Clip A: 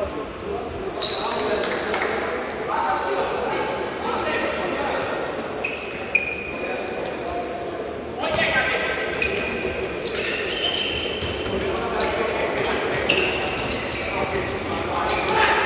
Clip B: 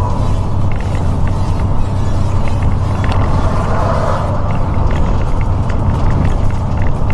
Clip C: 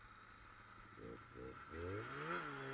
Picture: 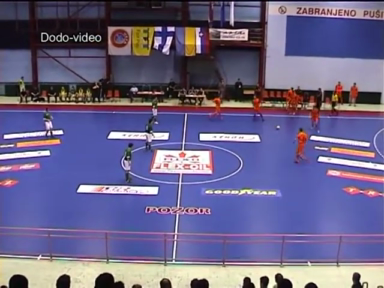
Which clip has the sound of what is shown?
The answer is A